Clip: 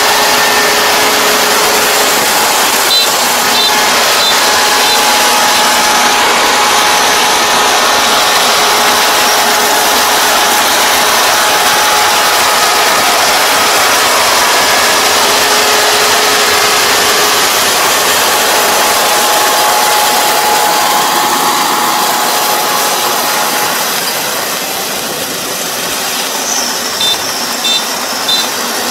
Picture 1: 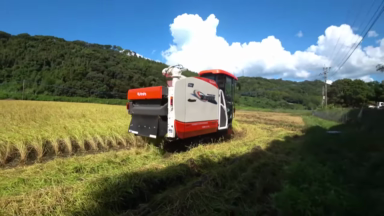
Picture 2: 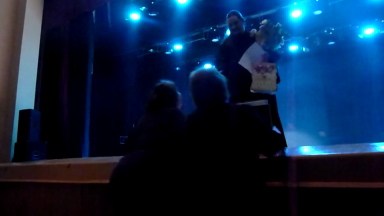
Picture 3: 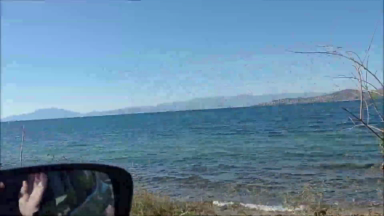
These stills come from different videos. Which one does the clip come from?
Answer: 1